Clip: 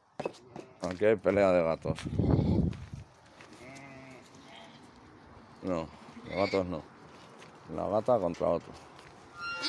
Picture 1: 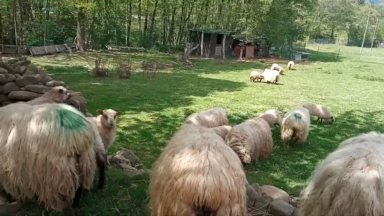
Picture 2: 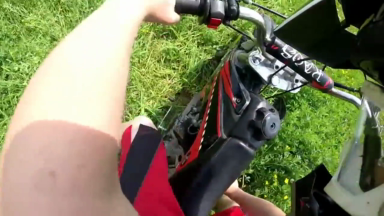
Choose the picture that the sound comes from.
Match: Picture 1